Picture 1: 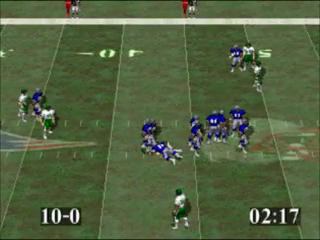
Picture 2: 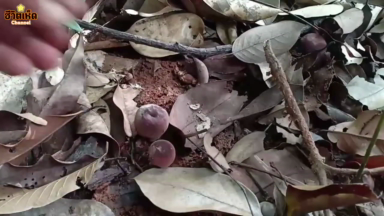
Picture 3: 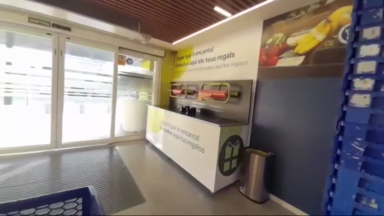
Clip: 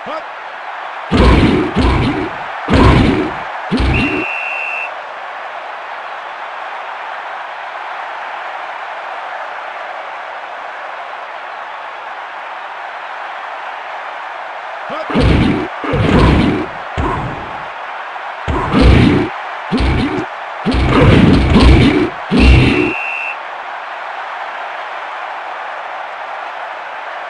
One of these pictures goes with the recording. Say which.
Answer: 1